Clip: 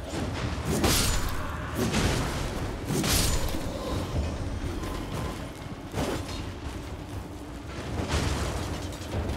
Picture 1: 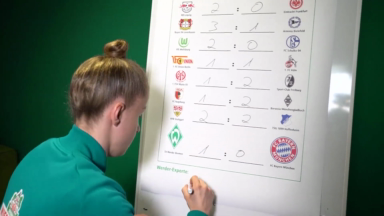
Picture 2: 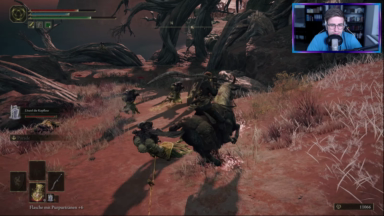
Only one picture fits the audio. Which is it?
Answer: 2